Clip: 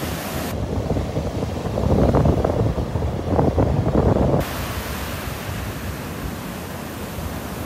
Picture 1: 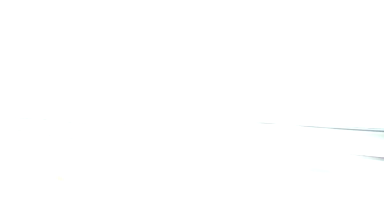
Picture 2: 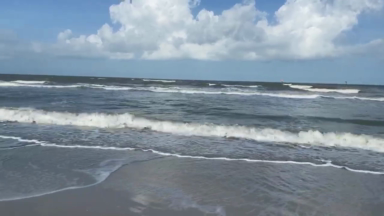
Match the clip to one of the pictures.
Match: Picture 2